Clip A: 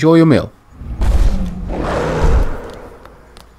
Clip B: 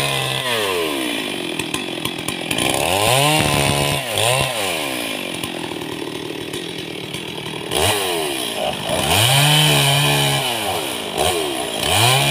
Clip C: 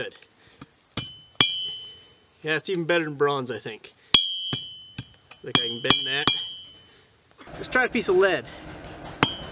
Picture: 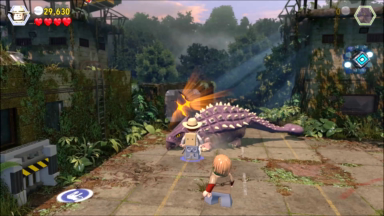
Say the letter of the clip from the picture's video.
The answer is A